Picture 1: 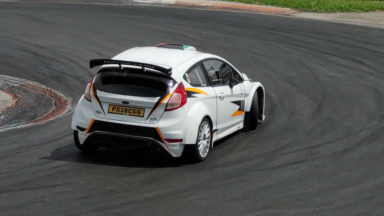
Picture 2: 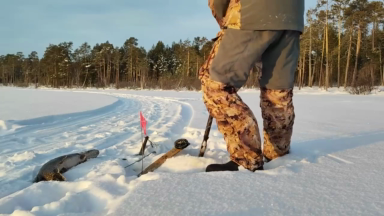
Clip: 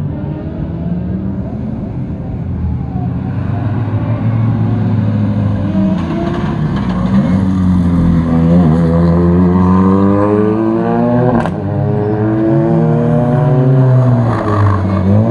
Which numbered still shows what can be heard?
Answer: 1